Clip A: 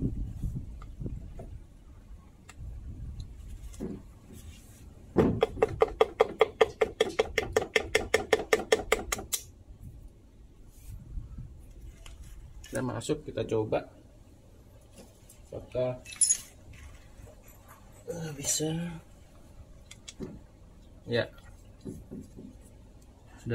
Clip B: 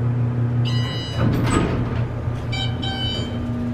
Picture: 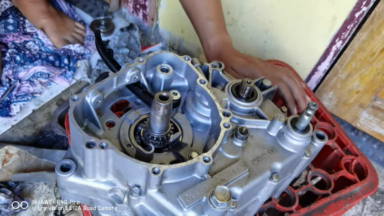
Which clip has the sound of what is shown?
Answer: A